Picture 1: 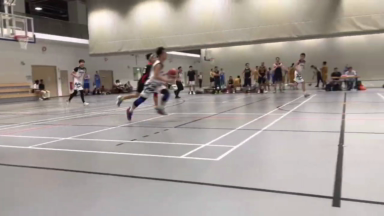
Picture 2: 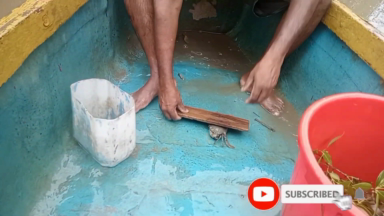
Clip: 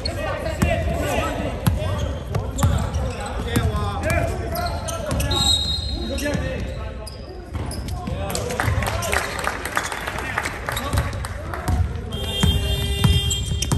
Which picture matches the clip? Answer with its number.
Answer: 1